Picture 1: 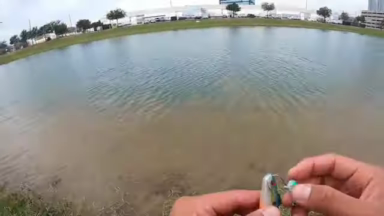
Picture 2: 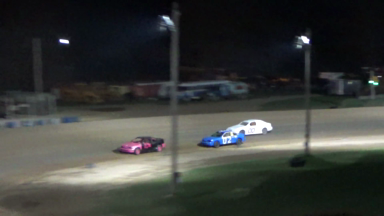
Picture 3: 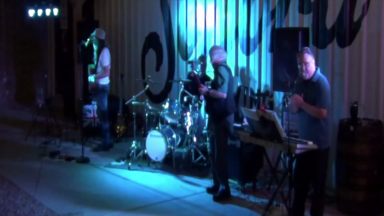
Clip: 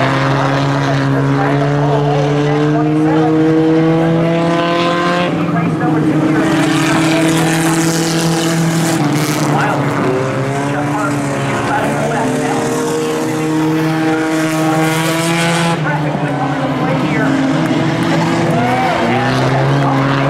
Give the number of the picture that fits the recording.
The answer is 2